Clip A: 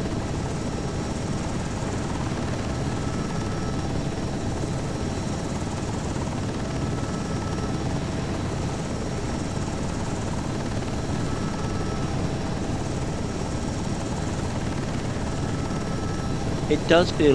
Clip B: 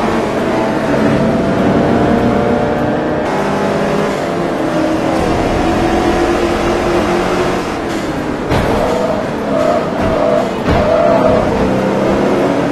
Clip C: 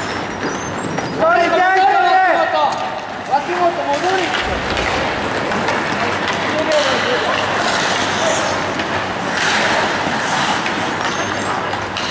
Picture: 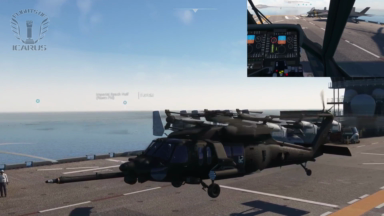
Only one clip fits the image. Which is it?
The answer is A